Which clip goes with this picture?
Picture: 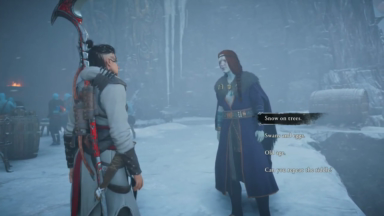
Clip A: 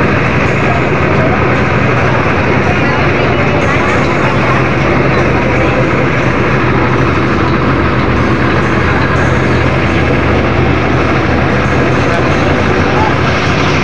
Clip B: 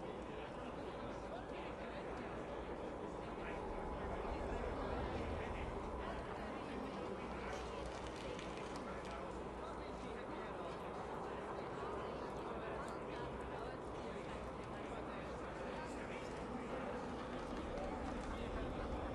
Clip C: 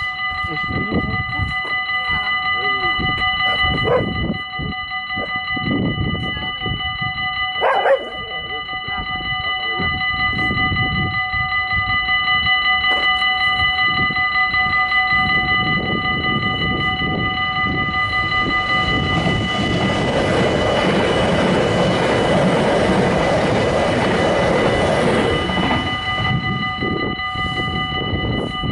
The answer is B